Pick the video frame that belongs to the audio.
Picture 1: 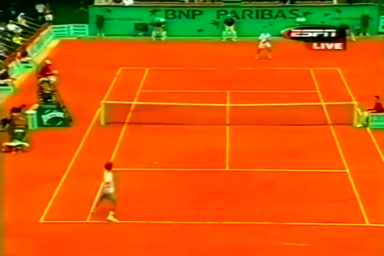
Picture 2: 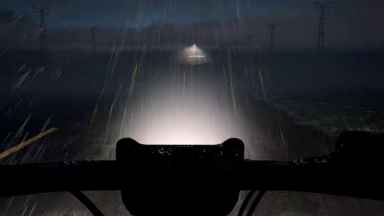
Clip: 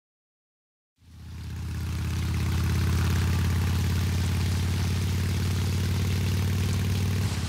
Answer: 2